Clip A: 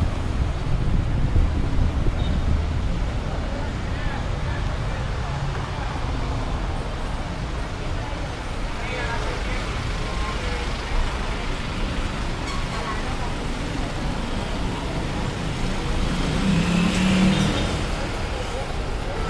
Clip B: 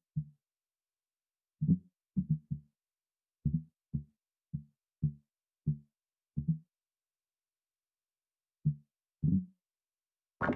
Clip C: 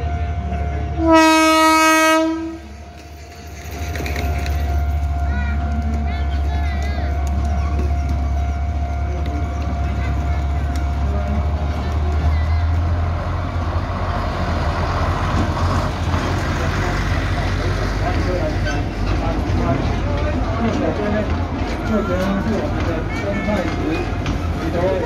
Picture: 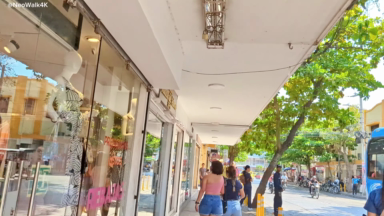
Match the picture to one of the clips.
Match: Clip A